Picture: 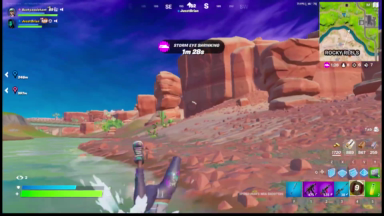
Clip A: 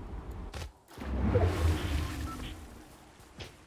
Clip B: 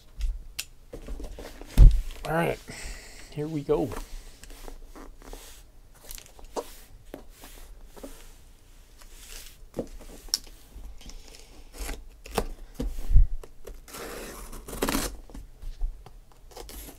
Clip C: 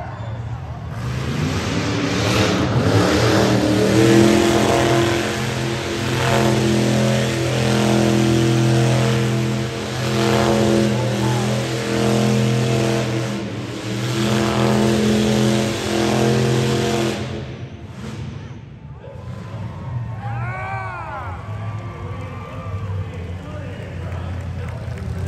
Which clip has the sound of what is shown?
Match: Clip A